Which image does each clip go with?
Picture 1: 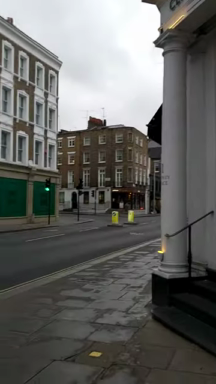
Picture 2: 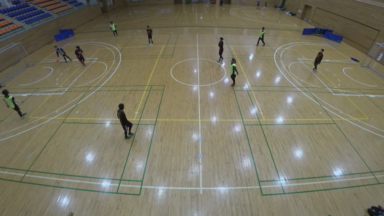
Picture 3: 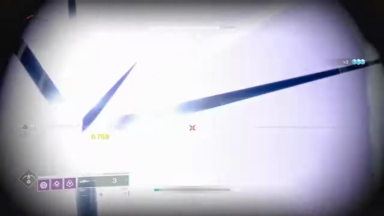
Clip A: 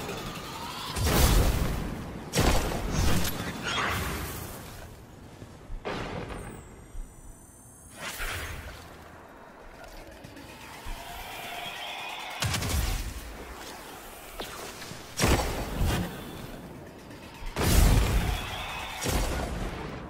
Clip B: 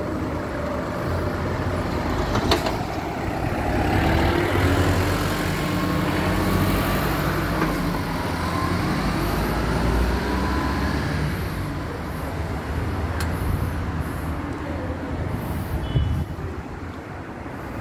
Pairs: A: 3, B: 1